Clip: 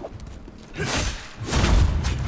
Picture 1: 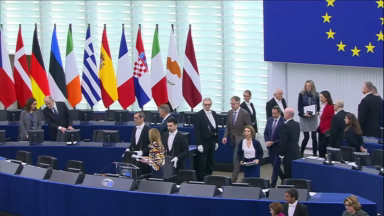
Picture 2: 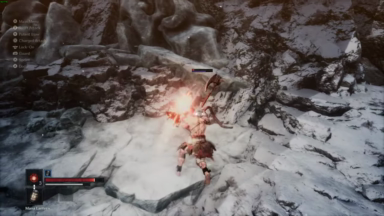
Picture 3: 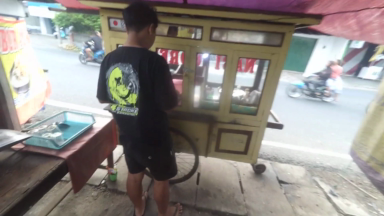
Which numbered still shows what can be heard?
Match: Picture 2